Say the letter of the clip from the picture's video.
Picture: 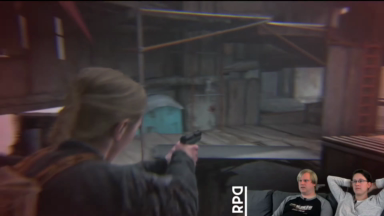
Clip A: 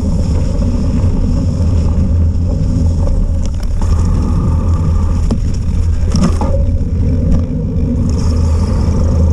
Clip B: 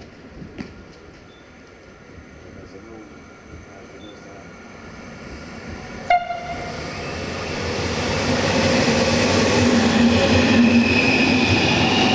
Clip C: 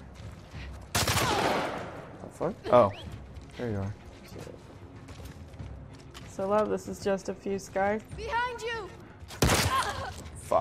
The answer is C